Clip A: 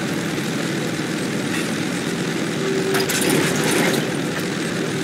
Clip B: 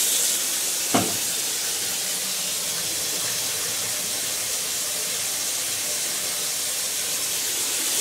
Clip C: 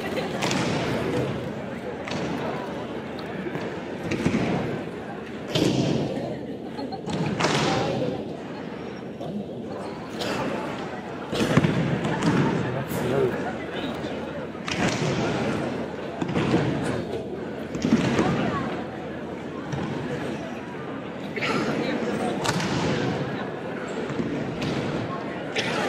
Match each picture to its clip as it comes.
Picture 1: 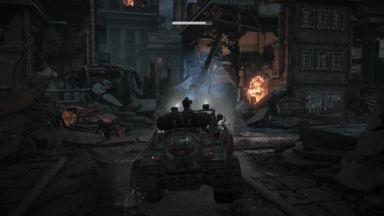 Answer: A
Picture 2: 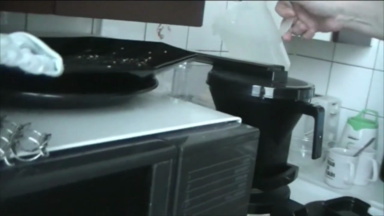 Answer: B